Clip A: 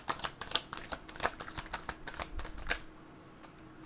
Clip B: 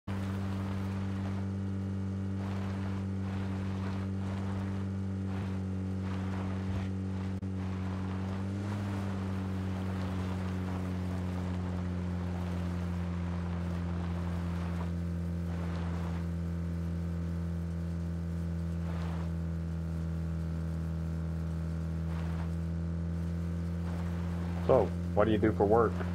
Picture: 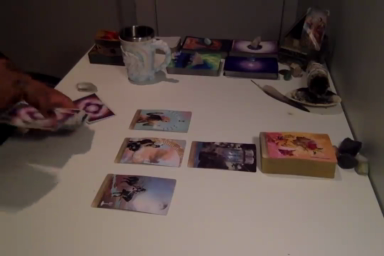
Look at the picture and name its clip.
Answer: A